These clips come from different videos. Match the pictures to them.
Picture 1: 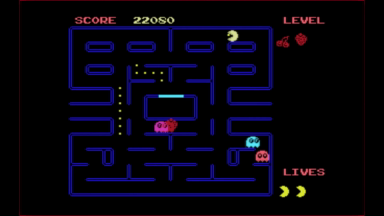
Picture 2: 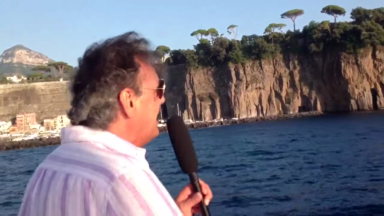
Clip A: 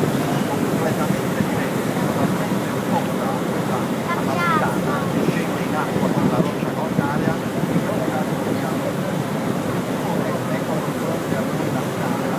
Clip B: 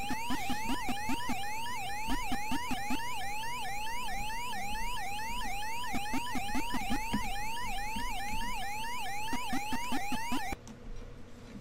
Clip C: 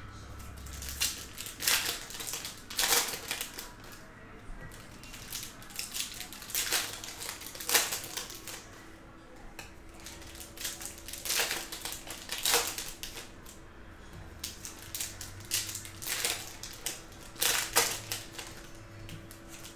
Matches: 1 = B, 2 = A